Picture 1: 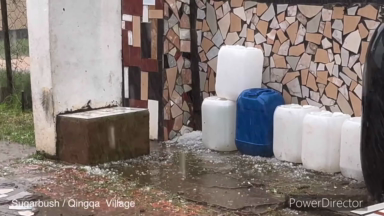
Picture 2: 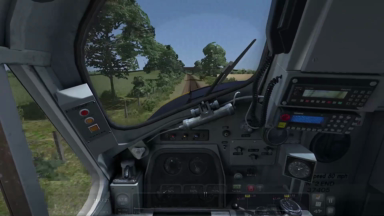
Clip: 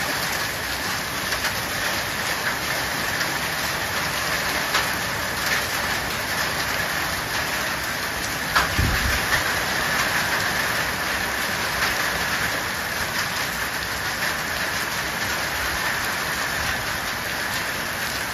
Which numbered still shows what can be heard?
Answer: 1